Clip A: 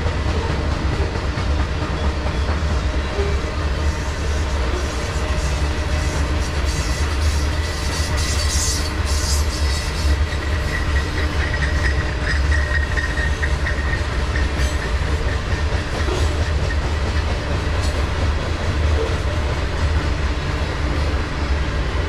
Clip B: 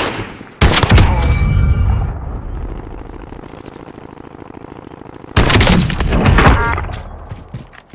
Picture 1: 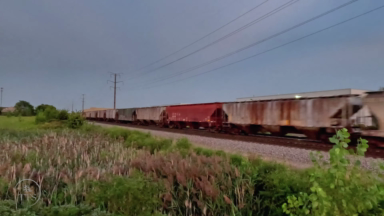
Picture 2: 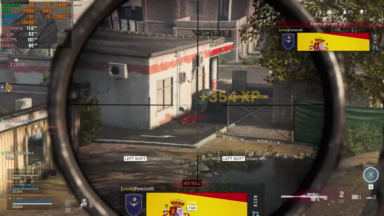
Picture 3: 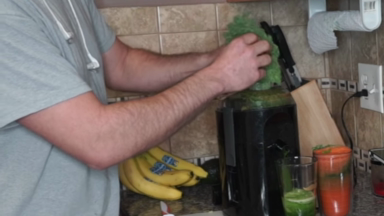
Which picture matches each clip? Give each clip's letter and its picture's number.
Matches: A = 1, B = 2